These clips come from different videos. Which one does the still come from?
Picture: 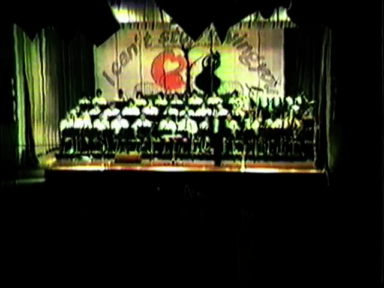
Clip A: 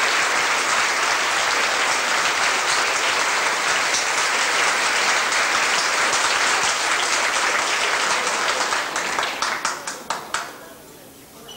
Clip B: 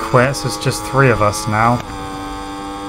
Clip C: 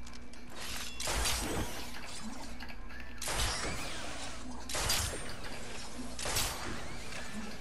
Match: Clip A